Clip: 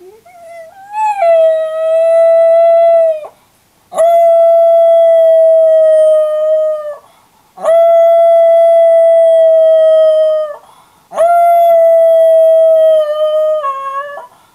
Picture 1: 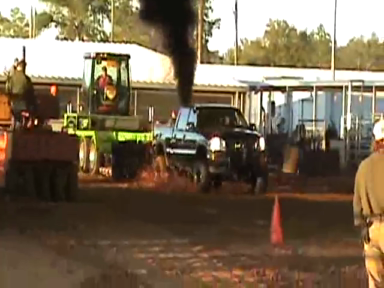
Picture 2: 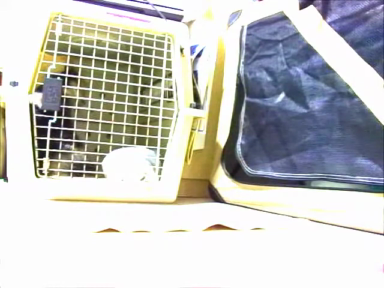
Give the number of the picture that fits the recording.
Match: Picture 2